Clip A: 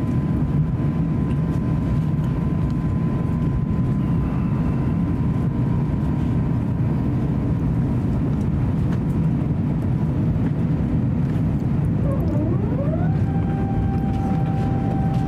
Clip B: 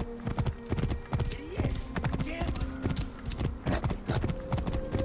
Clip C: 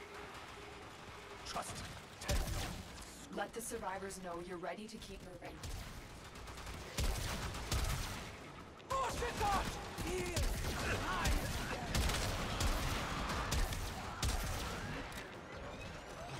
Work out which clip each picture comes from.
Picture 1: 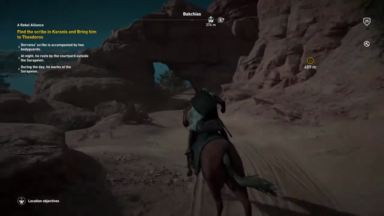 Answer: B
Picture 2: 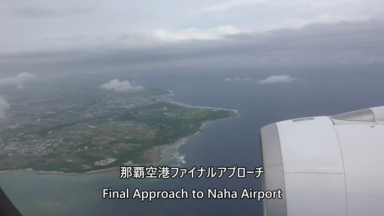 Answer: A